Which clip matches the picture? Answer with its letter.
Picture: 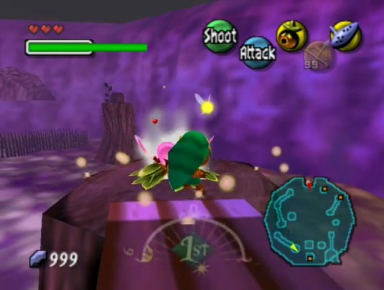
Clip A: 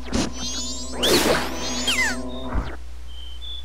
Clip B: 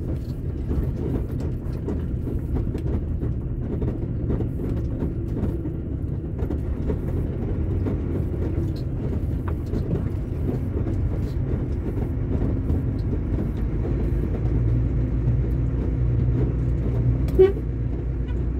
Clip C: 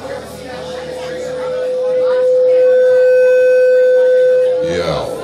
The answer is A